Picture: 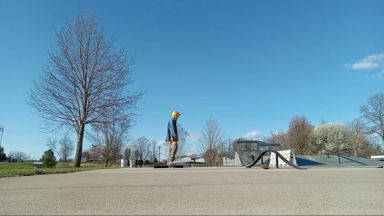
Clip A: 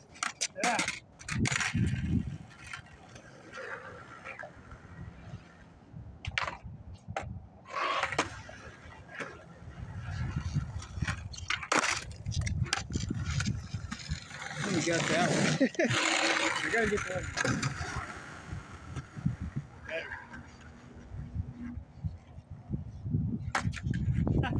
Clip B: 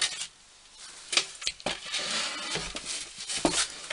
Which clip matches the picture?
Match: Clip A